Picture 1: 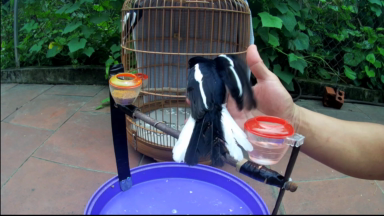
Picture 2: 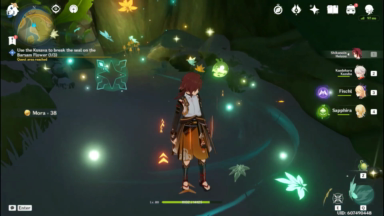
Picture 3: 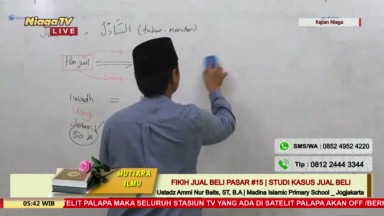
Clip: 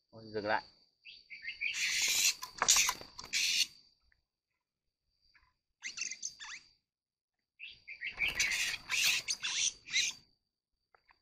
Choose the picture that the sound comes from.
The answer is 1